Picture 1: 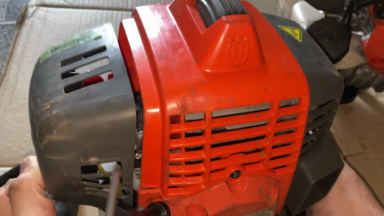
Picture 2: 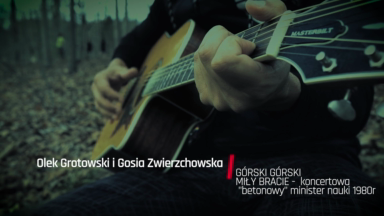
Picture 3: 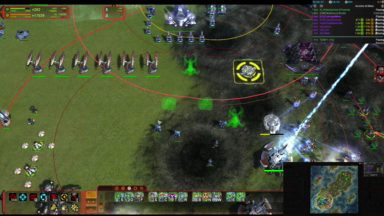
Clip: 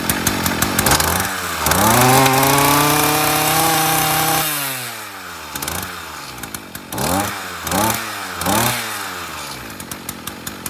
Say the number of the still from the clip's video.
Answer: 1